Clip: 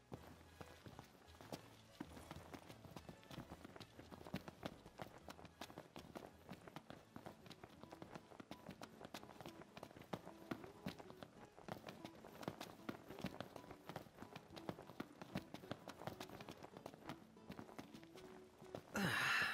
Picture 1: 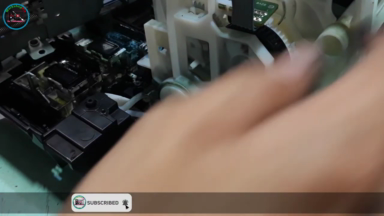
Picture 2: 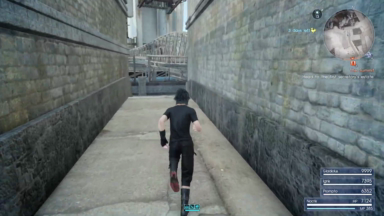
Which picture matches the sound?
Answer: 2